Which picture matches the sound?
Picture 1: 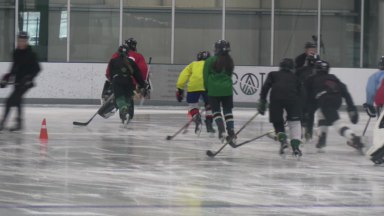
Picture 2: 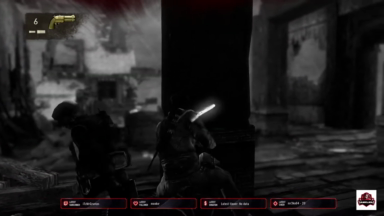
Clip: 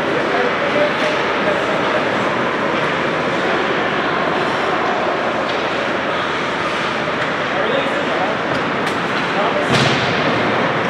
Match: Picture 1